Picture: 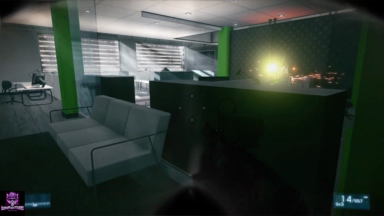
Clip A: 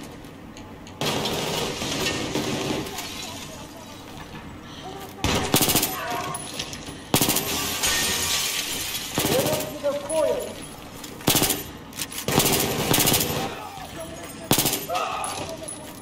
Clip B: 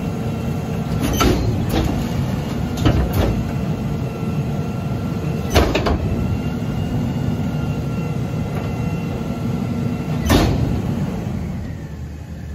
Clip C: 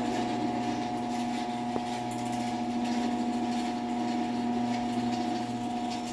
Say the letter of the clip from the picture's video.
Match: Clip A